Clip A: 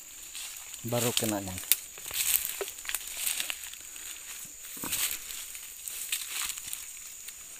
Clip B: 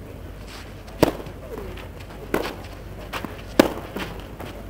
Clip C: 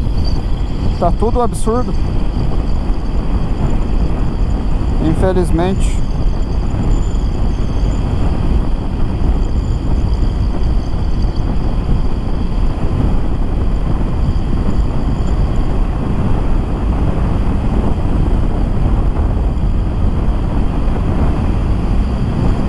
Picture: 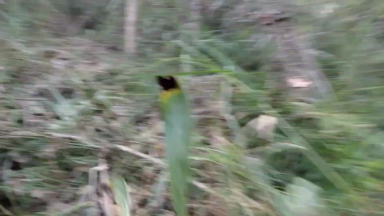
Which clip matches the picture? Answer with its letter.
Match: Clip A